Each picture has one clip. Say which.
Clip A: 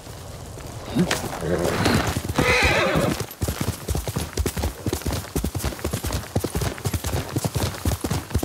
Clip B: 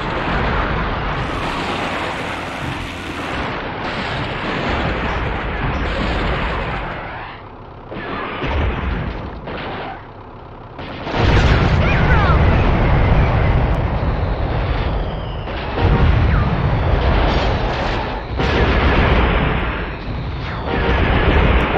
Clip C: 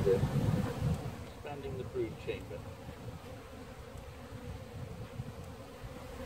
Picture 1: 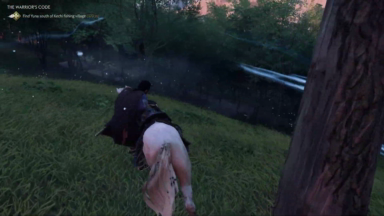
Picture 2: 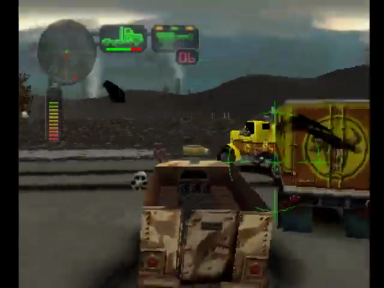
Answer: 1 A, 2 B